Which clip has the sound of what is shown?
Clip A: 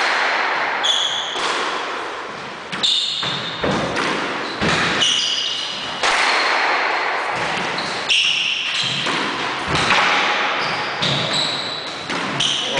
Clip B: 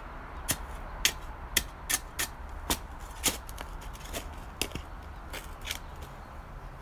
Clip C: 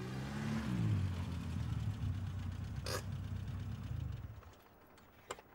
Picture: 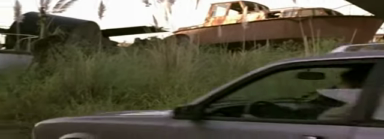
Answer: C